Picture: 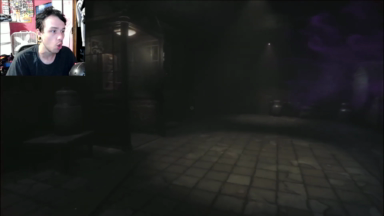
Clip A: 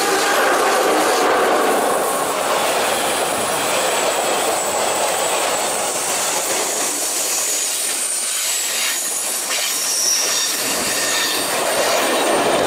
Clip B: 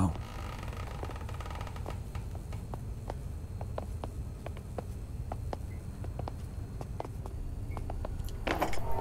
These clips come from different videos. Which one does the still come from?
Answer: B